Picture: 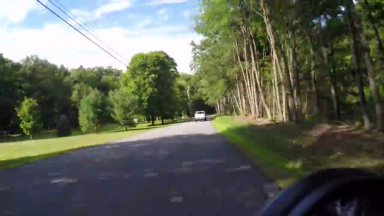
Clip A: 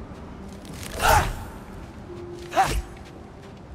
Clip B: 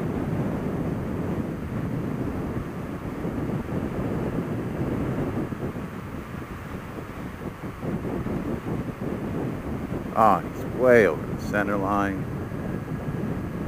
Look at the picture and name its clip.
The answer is B